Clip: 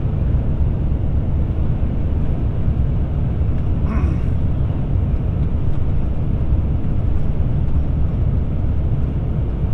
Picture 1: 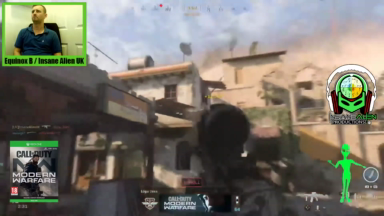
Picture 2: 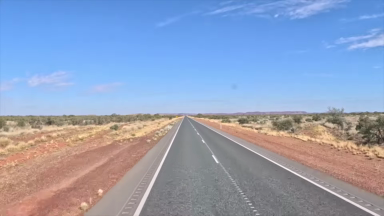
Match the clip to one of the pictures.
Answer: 2